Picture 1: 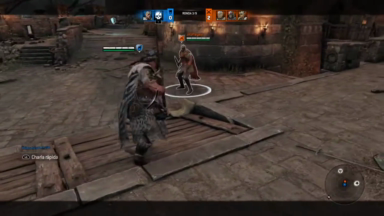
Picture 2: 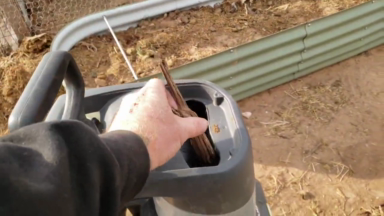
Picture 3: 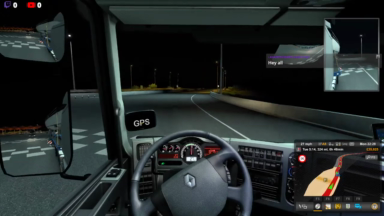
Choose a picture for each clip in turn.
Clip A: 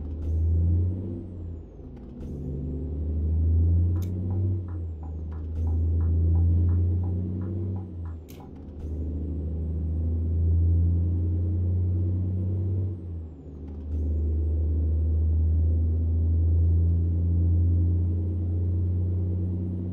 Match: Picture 3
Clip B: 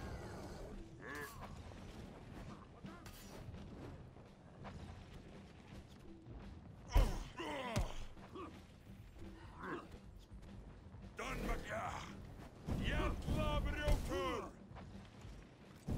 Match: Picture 1